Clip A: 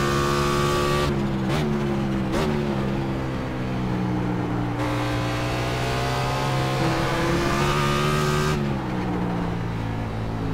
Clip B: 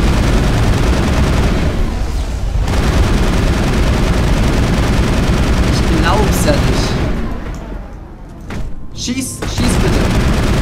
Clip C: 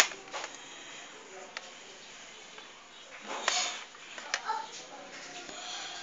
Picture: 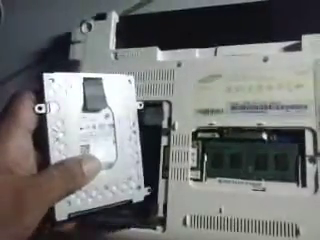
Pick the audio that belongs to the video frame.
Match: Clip C